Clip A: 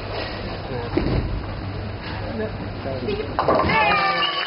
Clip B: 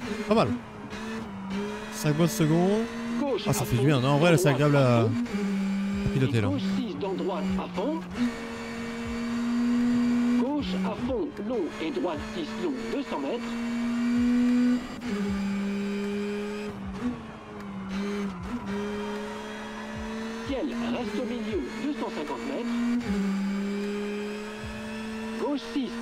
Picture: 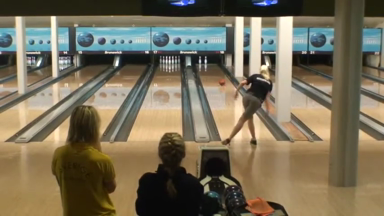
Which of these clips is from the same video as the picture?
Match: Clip A